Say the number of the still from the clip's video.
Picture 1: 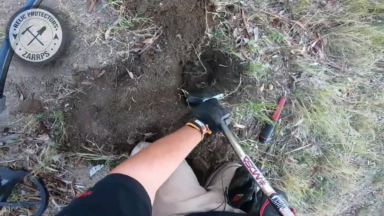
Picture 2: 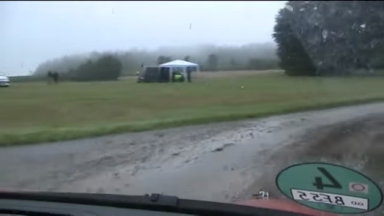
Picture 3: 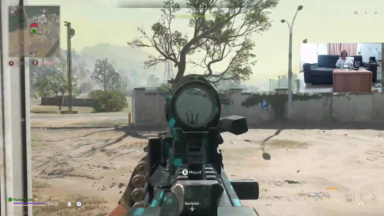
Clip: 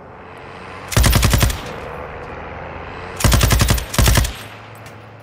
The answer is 3